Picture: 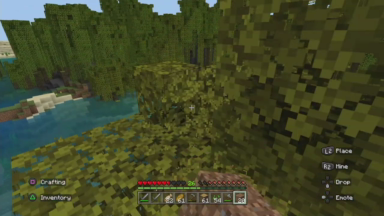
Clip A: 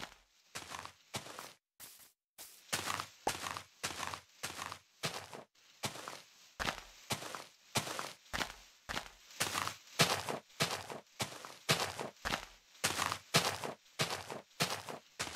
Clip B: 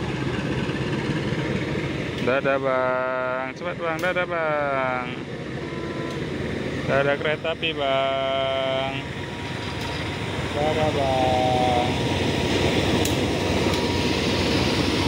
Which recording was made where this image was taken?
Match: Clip A